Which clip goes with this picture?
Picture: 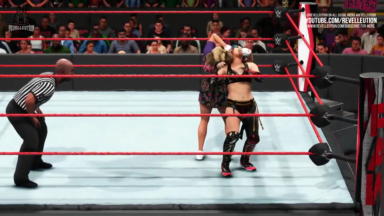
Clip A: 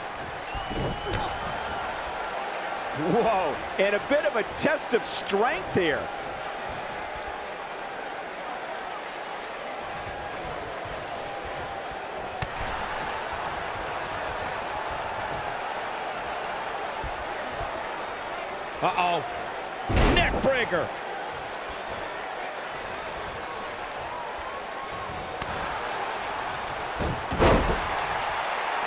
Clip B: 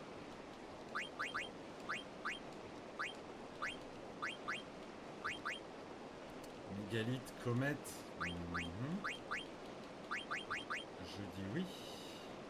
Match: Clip A